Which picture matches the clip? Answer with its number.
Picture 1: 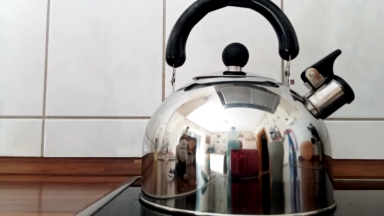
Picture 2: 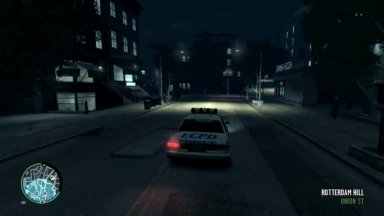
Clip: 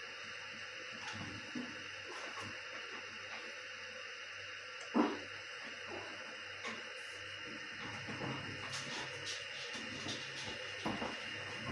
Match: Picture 1